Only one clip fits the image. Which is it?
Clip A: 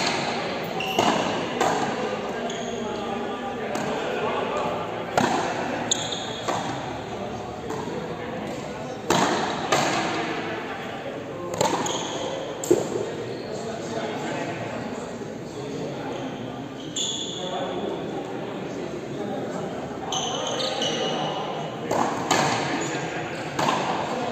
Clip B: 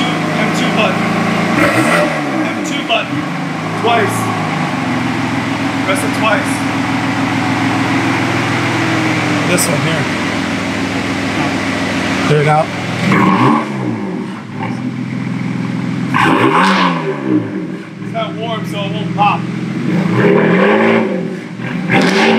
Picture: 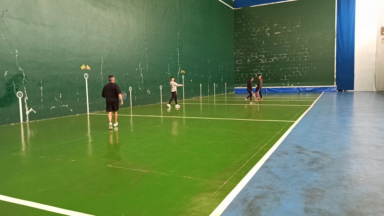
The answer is A